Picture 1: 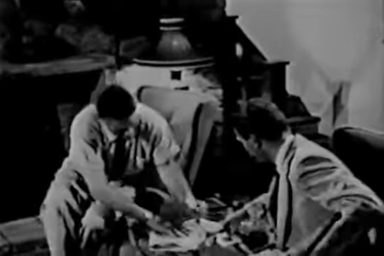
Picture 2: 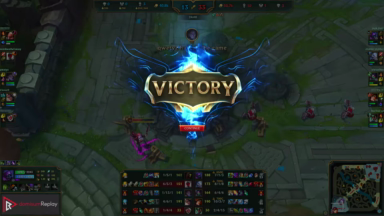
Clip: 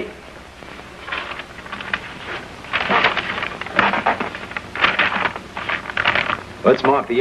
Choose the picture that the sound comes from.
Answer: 1